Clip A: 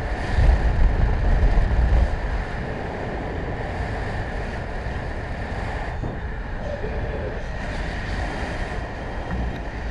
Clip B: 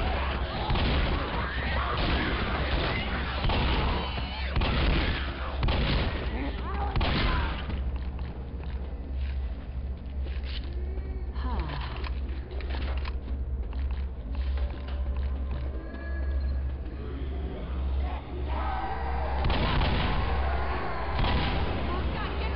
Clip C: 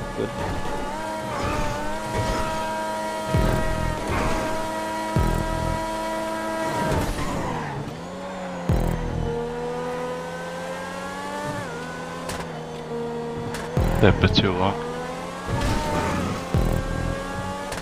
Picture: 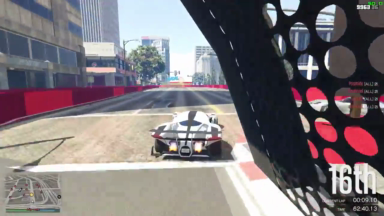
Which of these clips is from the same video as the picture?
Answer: C